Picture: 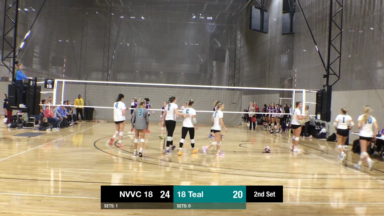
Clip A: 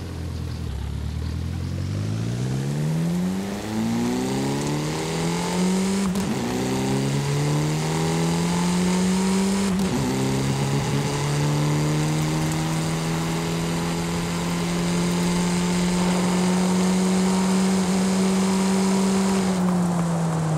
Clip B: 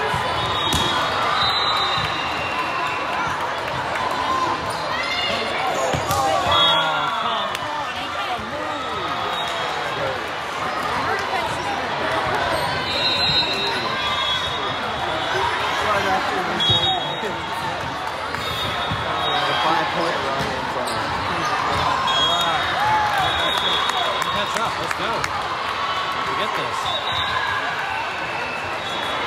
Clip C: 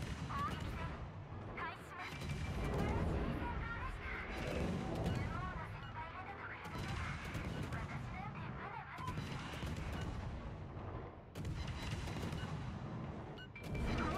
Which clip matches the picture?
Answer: B